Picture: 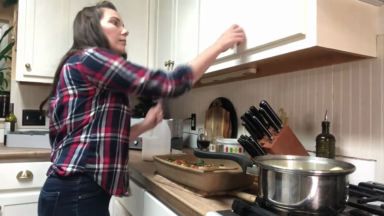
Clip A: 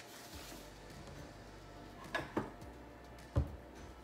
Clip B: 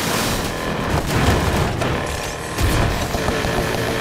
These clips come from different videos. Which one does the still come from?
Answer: A